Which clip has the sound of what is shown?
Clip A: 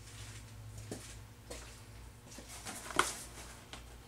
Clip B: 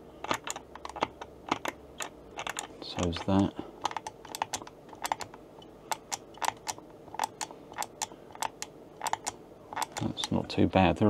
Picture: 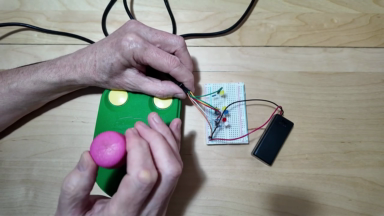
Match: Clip B